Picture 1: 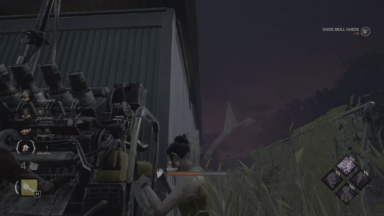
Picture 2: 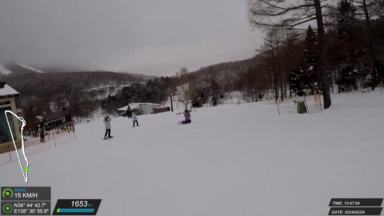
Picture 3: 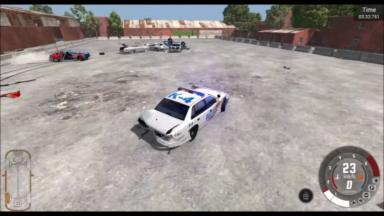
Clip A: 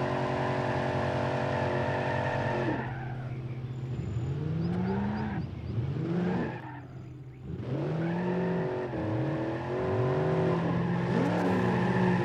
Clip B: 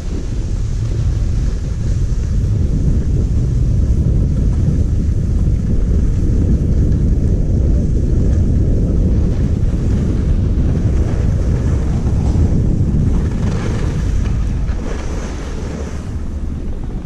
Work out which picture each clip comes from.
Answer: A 3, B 2